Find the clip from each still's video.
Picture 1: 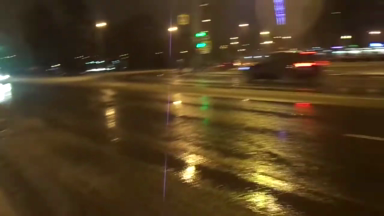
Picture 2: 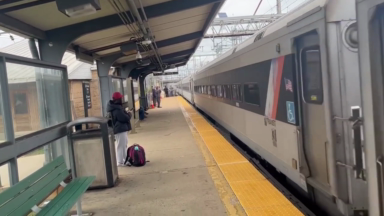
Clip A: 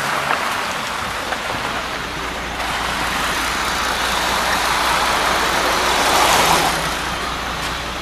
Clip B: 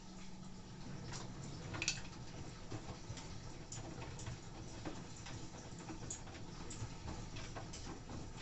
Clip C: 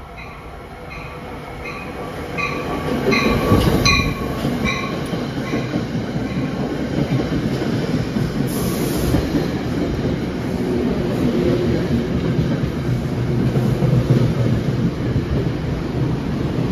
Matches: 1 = A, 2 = C